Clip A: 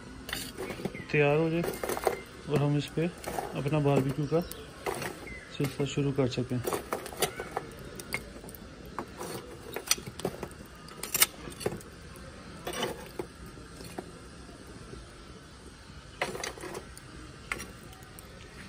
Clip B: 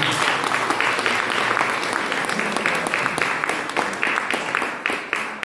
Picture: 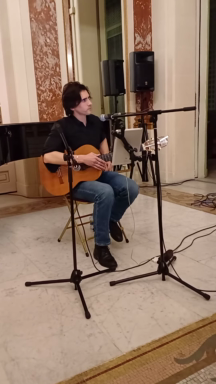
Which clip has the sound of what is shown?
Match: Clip B